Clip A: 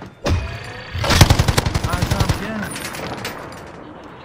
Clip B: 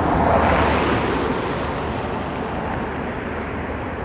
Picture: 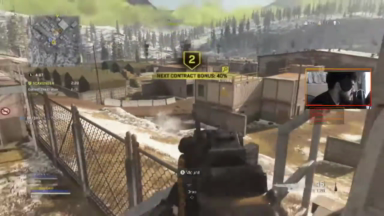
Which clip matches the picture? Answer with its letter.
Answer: A